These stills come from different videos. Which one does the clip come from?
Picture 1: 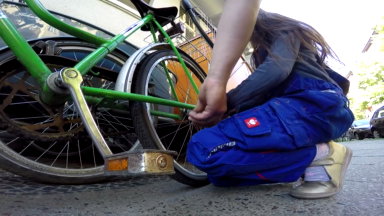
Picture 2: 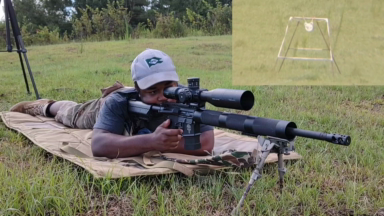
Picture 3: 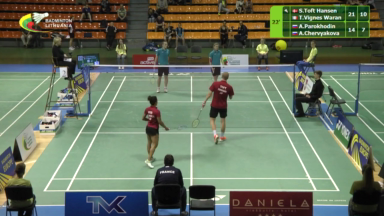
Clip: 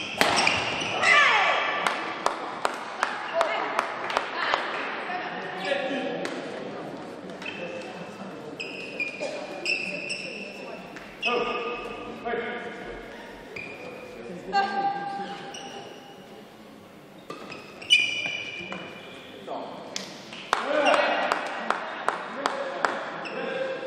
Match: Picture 3